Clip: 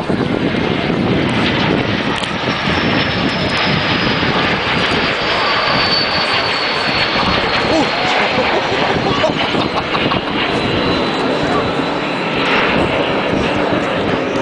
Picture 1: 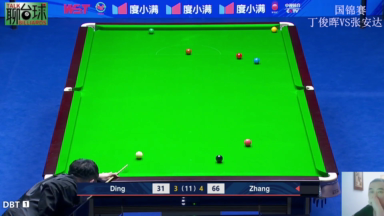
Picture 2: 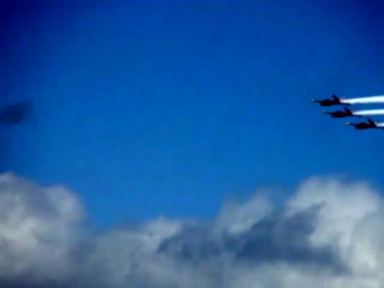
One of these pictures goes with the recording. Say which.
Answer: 2